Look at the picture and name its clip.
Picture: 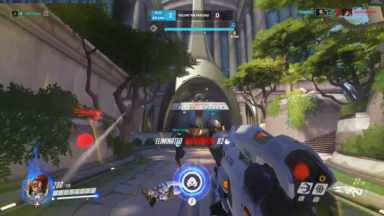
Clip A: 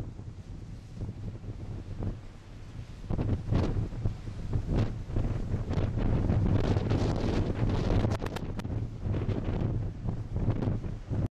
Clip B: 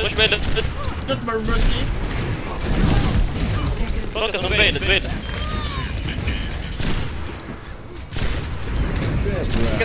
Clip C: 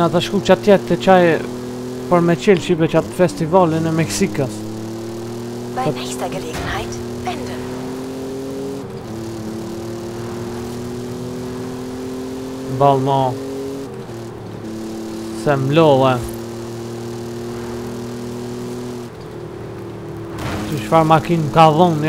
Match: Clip B